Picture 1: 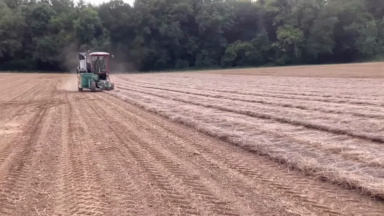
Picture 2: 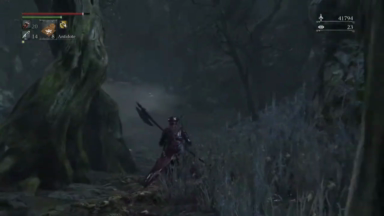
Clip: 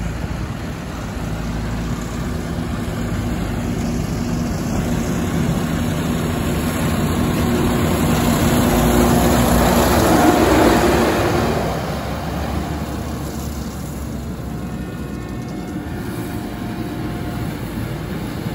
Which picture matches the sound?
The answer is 1